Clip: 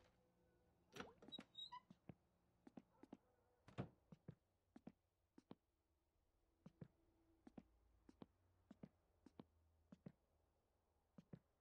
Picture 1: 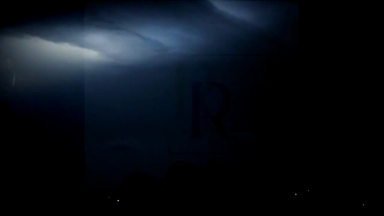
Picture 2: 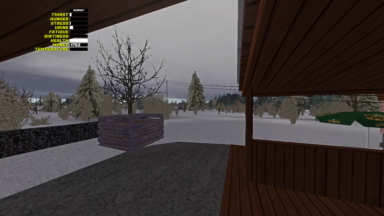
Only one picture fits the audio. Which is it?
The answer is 2